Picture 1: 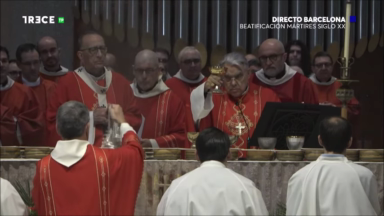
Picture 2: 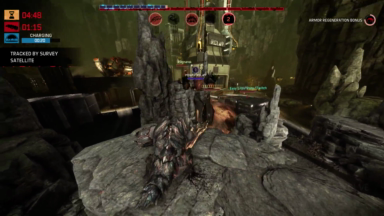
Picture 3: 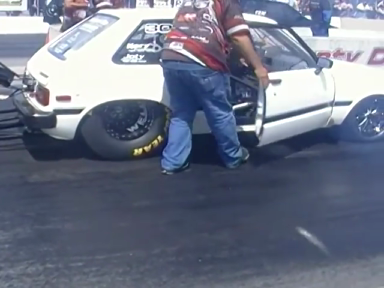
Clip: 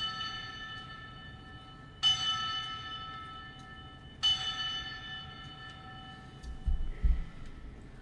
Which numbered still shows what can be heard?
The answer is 1